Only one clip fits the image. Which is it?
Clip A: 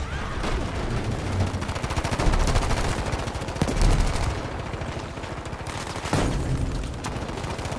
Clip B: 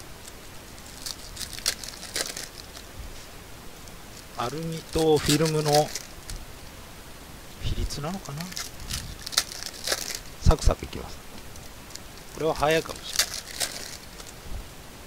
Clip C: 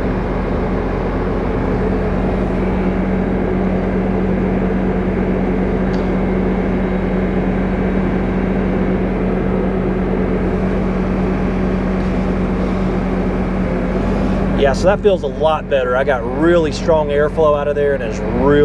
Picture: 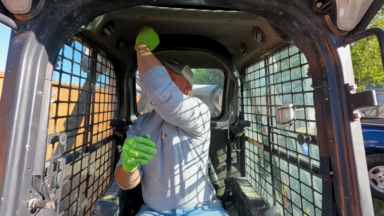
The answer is C